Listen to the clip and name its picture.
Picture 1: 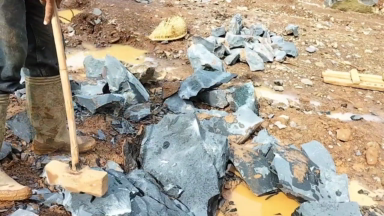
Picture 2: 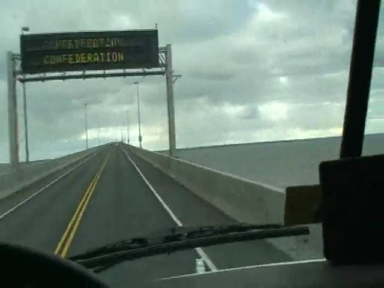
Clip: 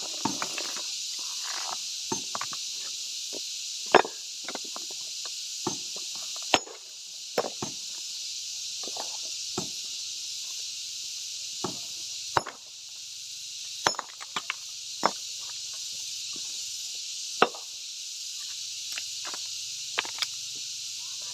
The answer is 1